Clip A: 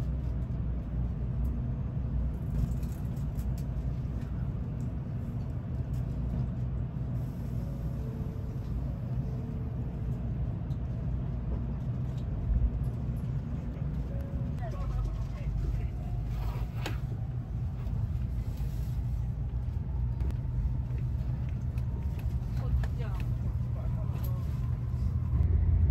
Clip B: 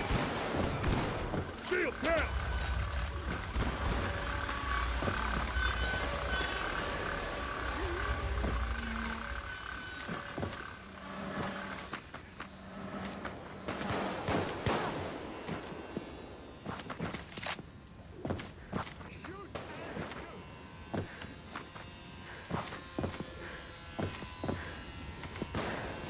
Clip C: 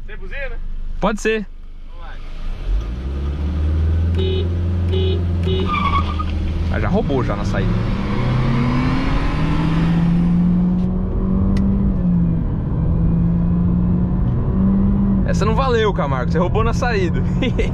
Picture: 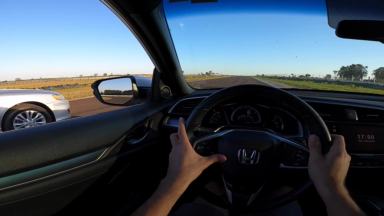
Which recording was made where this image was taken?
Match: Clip C